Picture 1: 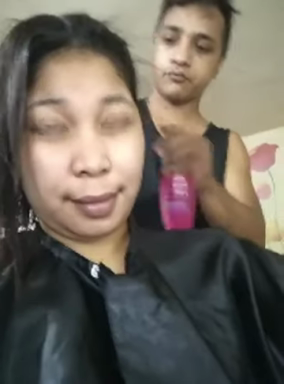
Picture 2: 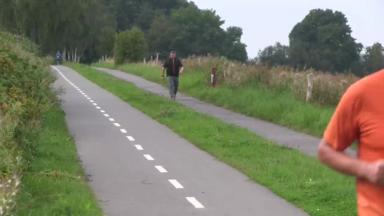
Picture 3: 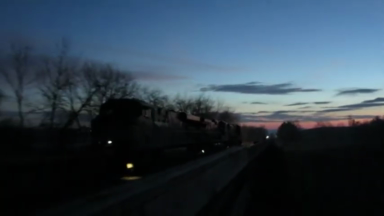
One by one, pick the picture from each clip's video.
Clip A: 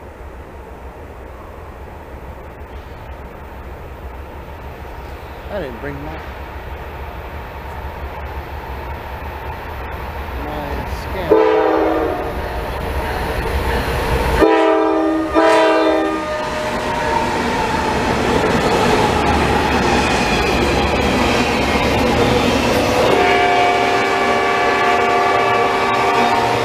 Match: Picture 3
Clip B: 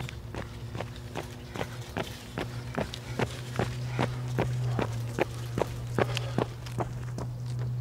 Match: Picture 2